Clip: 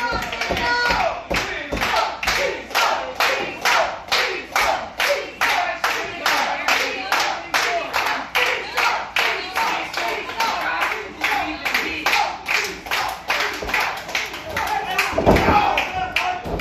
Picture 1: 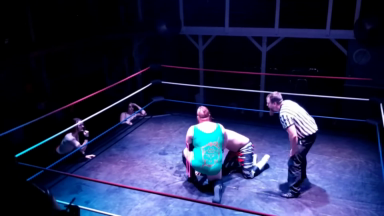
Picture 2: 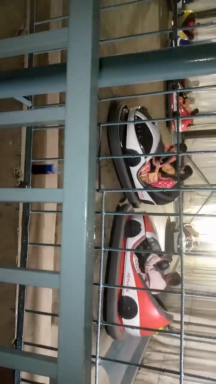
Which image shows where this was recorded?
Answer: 1